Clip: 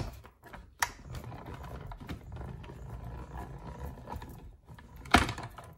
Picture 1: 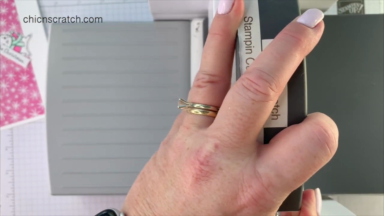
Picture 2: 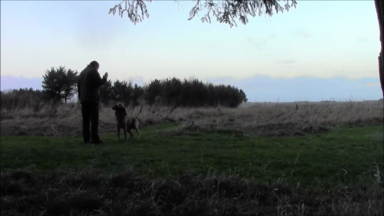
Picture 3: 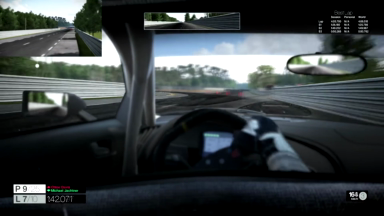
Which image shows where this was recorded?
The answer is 1